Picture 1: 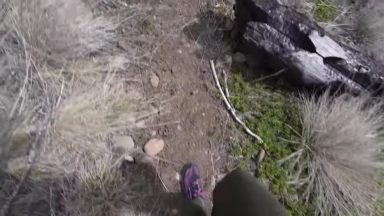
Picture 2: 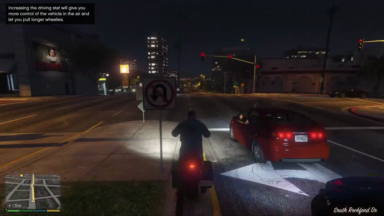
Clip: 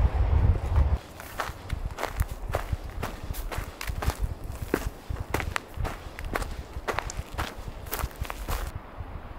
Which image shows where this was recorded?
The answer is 1